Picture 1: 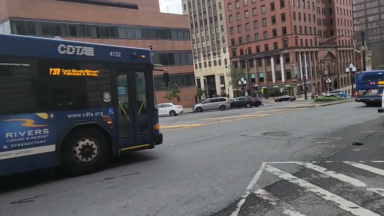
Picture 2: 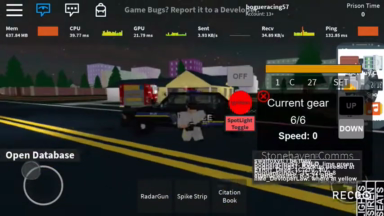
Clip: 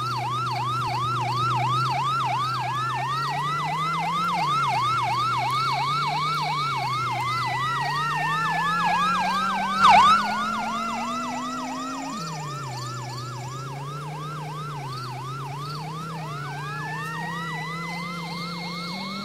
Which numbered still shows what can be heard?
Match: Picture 2